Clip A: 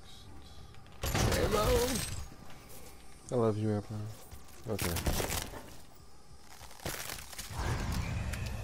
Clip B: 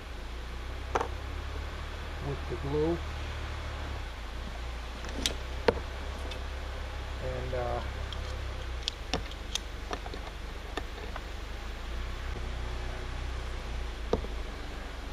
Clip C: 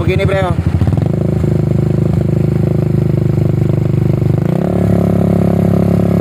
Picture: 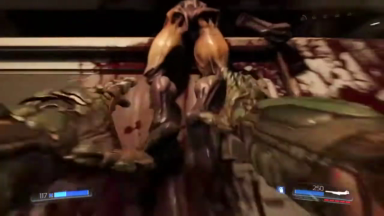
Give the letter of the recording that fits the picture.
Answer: A